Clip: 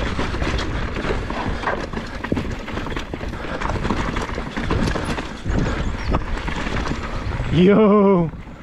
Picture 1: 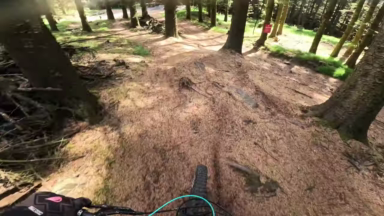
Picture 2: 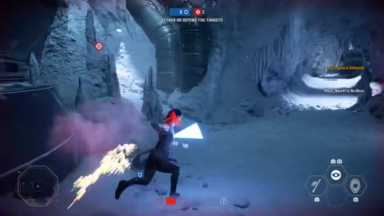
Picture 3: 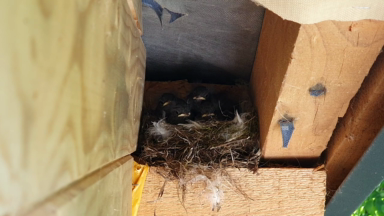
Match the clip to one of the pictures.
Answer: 1